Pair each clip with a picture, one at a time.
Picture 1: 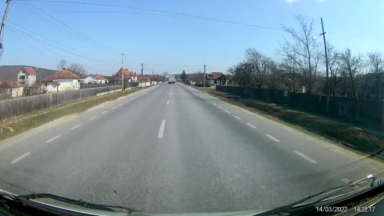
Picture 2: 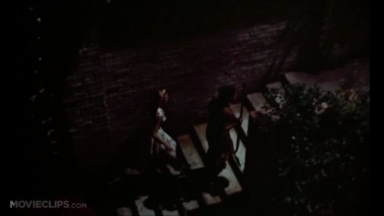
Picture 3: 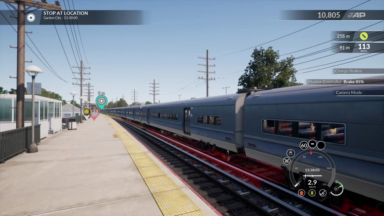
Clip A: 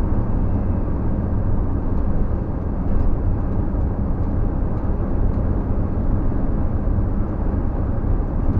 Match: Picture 1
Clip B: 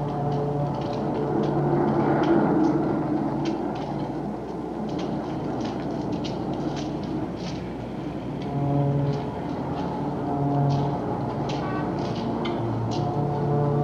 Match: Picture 2